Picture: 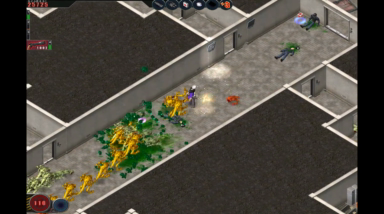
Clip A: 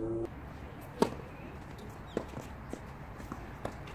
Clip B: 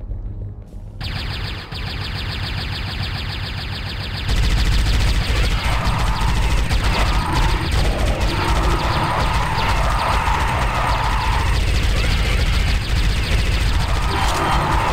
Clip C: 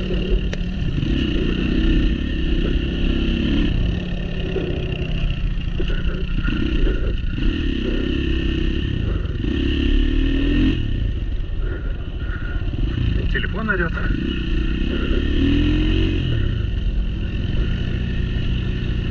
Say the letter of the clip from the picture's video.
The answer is B